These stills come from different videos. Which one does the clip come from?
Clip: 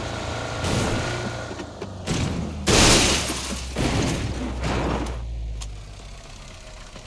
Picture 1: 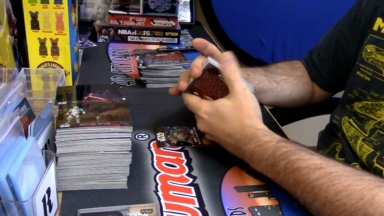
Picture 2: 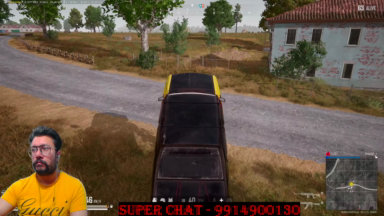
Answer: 2